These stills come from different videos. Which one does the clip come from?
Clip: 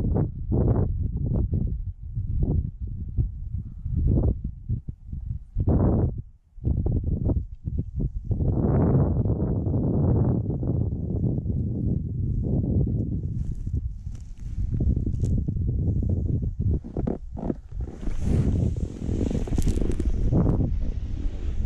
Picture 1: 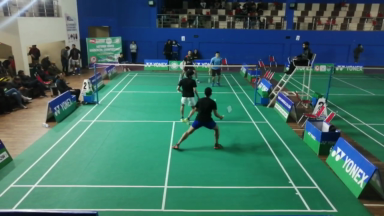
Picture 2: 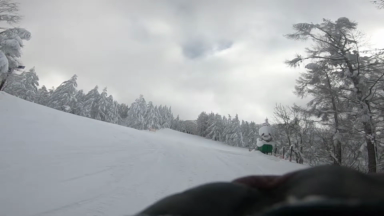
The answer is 2